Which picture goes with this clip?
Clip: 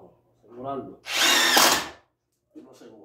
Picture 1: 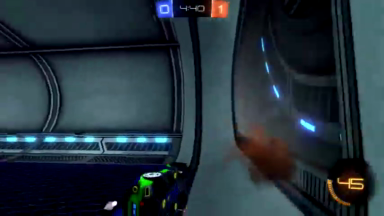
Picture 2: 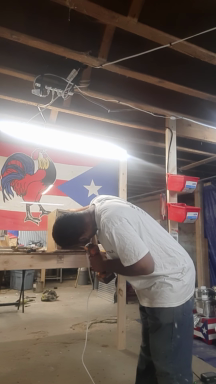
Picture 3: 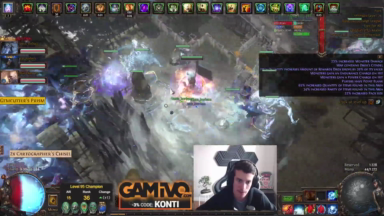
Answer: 2